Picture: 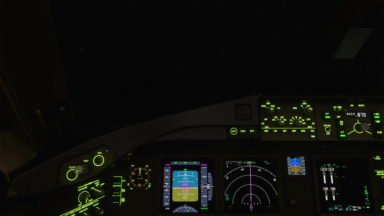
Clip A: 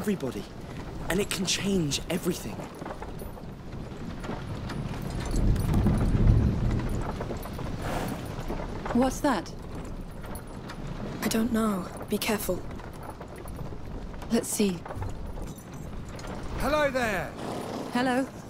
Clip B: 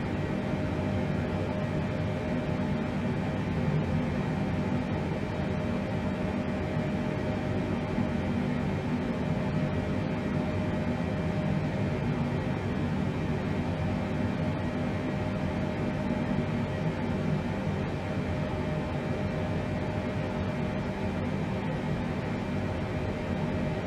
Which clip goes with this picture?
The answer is B